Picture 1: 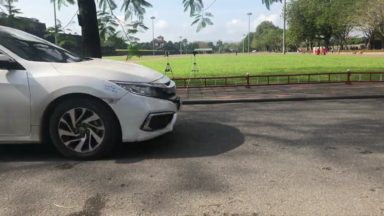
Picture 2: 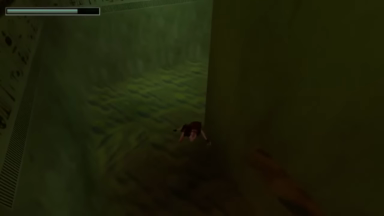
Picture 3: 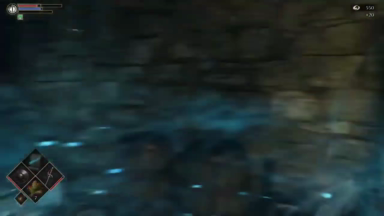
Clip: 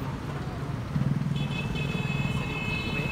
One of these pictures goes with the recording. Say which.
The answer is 1